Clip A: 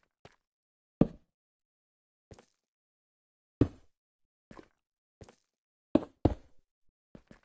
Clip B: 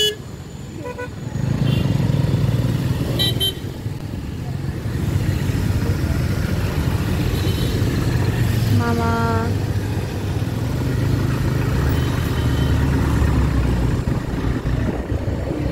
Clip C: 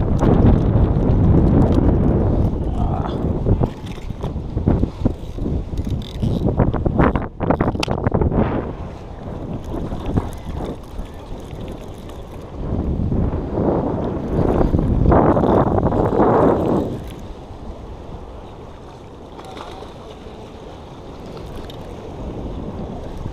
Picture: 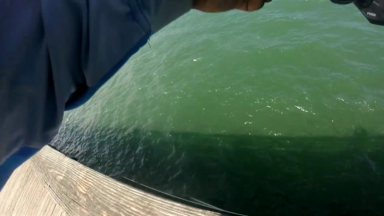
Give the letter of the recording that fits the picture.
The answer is C